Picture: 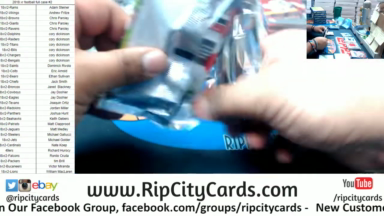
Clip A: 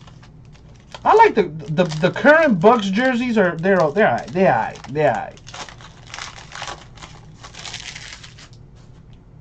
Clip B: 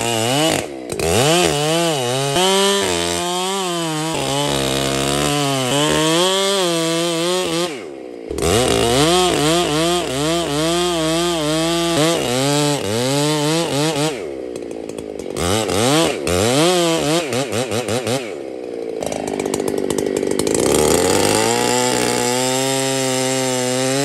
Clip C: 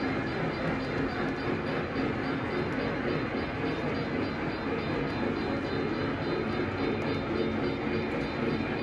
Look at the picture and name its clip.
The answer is A